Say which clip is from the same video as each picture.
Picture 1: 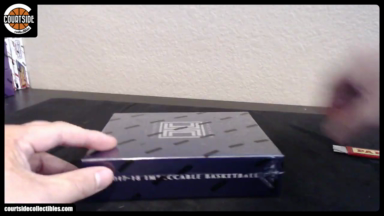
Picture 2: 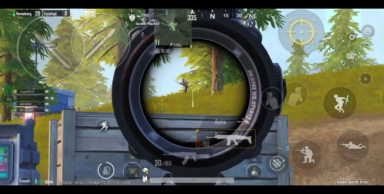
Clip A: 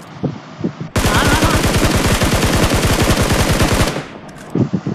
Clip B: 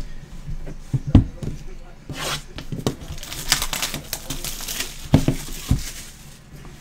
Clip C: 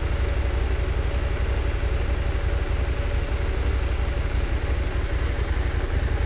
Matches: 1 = B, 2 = A